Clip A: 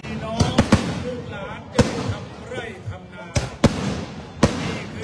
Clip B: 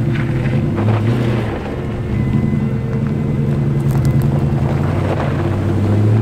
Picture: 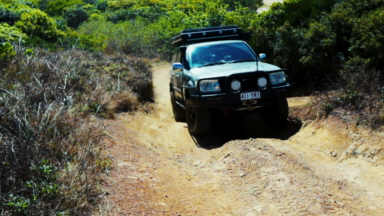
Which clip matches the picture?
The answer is B